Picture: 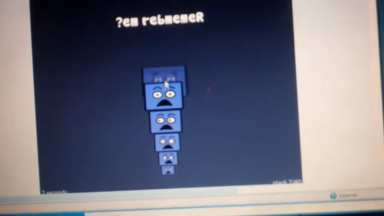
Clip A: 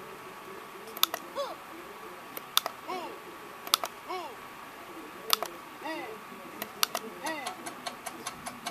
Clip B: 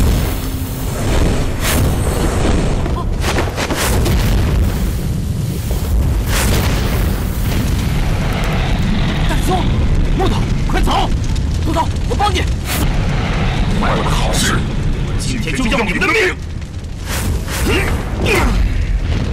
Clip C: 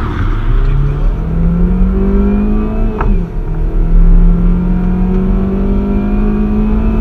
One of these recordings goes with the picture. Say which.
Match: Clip A